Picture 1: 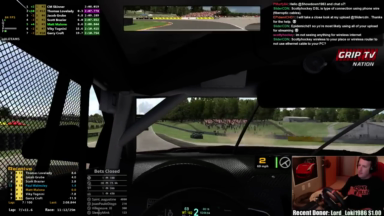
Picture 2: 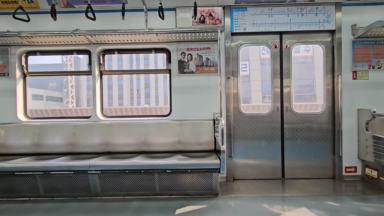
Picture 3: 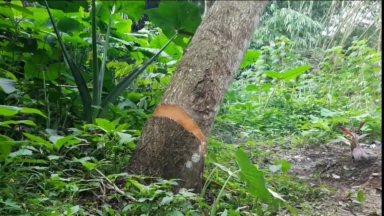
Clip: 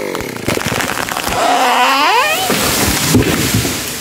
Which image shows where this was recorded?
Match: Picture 3